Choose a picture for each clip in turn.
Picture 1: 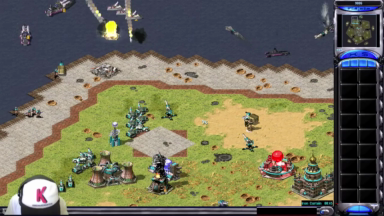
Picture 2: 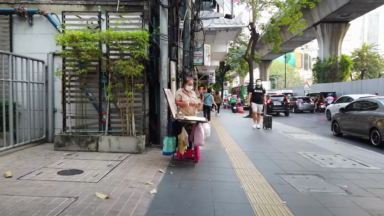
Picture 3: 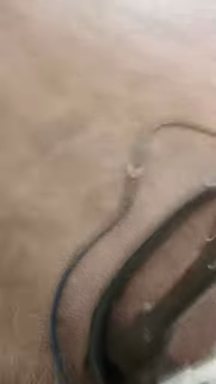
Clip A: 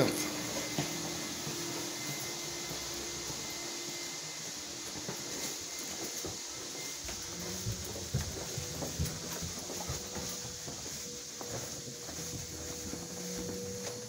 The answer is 3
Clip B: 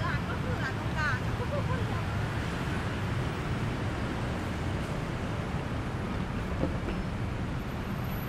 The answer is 2